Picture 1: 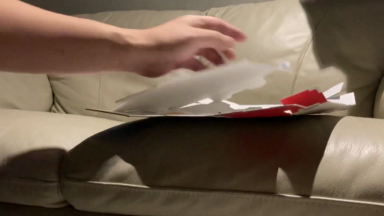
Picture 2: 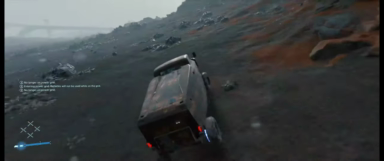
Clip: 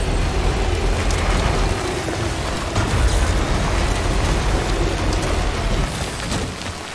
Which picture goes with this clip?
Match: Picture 2